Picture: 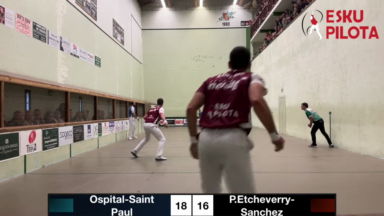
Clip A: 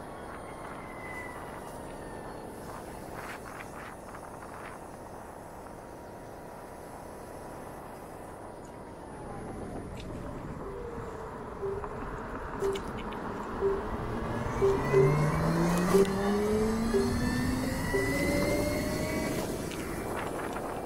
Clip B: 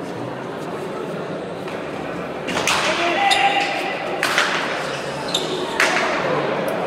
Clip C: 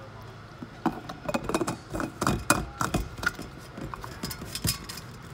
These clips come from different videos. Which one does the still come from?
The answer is B